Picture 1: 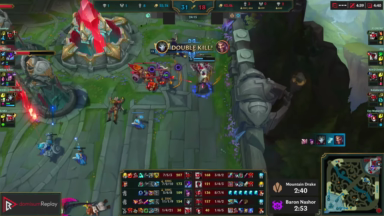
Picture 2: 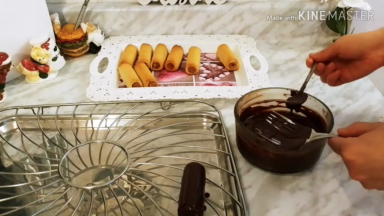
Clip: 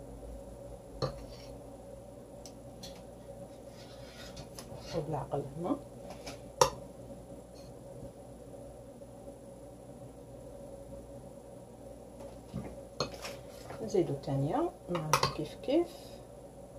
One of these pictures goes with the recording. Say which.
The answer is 2